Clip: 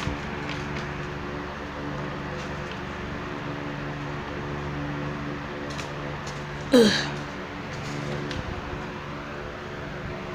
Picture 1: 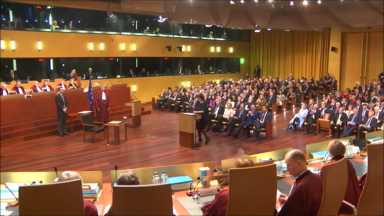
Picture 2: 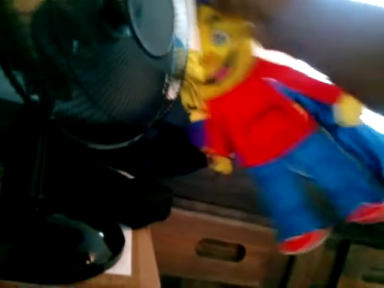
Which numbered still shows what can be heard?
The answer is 2